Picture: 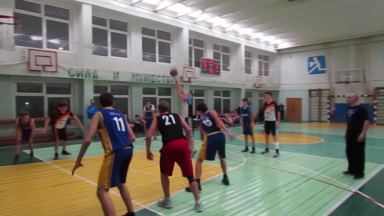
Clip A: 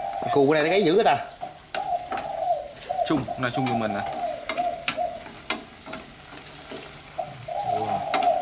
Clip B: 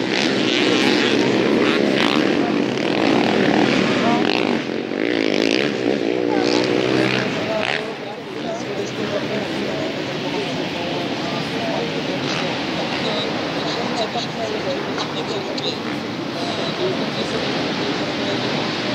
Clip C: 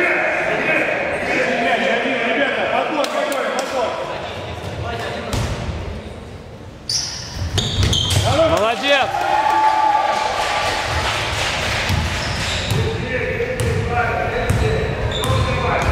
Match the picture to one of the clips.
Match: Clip C